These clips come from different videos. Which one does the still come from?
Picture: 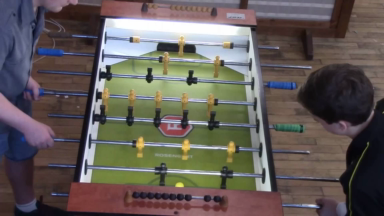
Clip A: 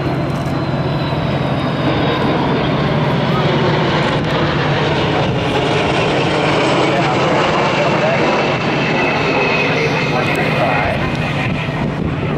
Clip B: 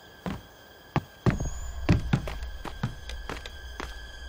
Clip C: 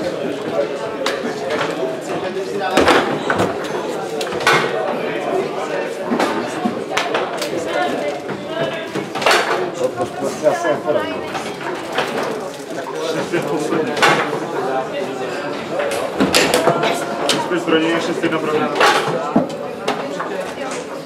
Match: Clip C